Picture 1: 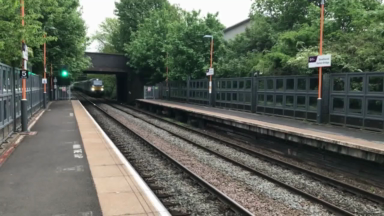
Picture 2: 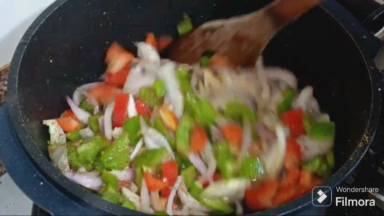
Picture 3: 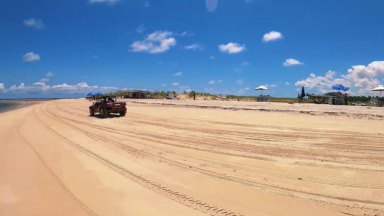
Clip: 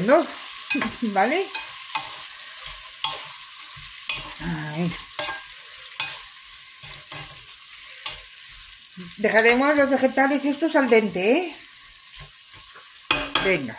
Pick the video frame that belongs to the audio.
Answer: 2